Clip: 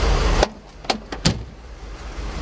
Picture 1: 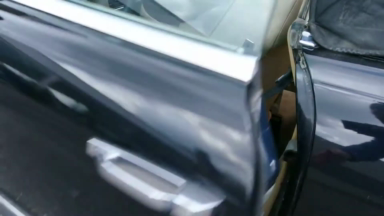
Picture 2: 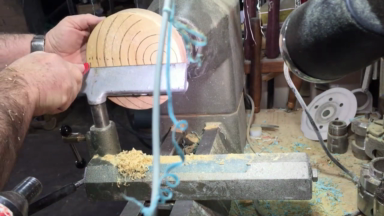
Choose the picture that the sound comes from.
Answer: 1